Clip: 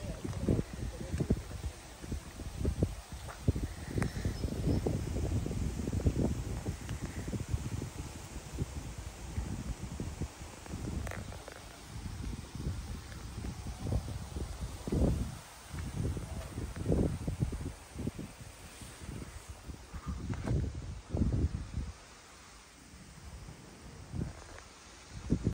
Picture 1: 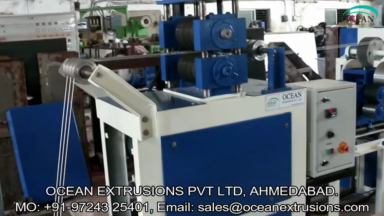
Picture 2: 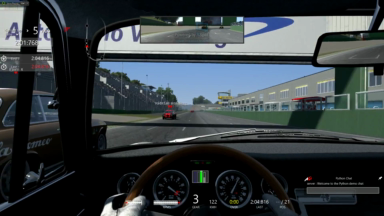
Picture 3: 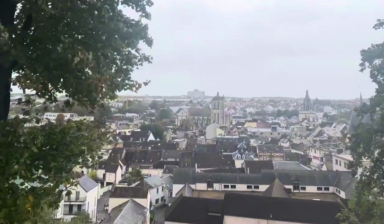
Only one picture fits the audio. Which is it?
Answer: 3